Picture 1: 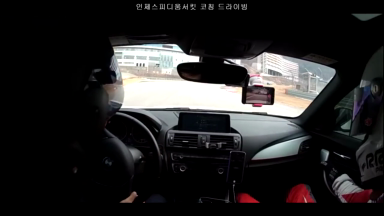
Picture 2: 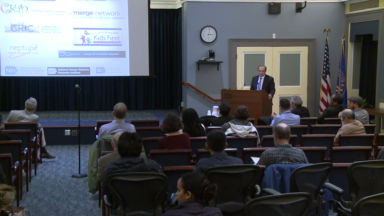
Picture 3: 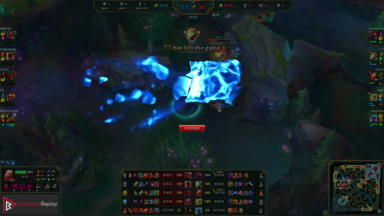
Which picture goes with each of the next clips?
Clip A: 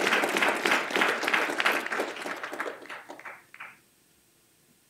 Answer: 2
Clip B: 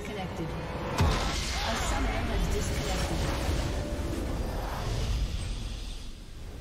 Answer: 3